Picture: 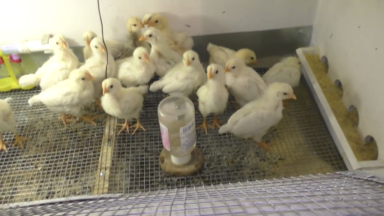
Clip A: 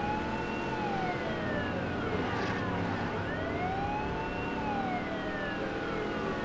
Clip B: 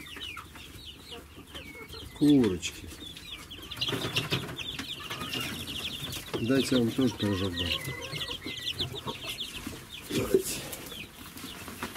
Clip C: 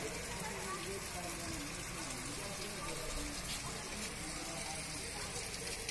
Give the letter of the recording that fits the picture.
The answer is B